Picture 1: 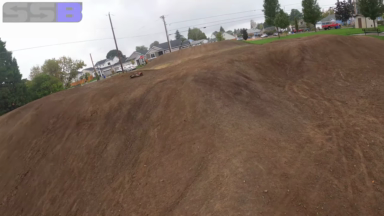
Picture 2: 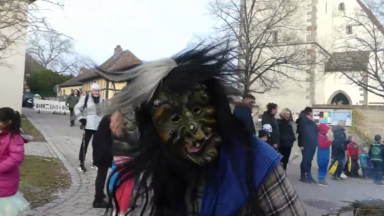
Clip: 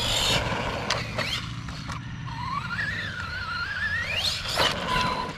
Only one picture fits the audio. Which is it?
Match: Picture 1